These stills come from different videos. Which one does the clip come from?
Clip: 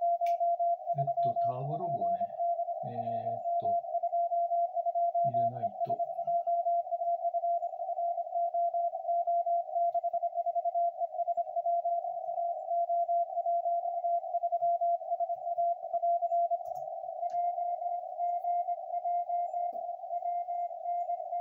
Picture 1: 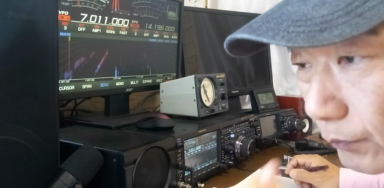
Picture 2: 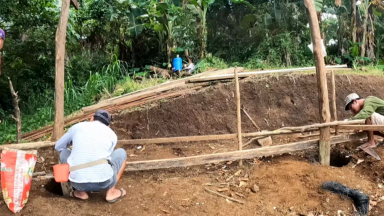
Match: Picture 1